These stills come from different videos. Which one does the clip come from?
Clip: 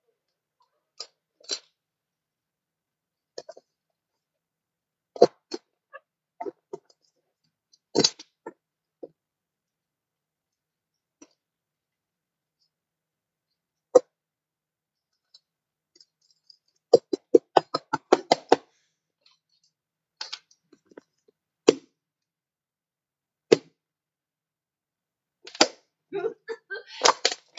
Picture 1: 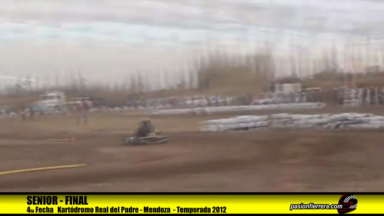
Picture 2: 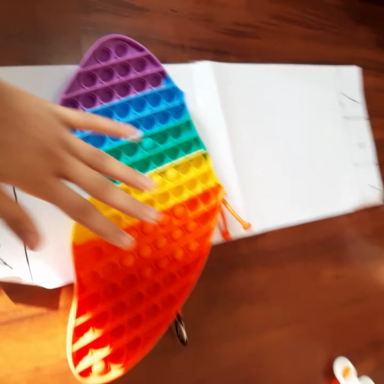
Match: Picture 2